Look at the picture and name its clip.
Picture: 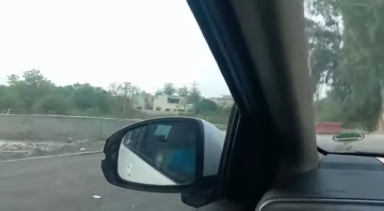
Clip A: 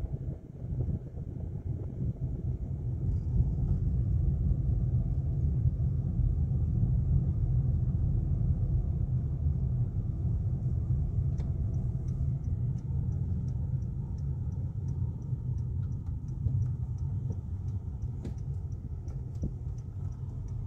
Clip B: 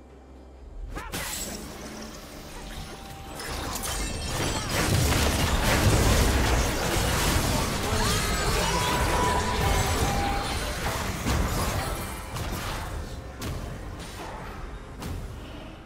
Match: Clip A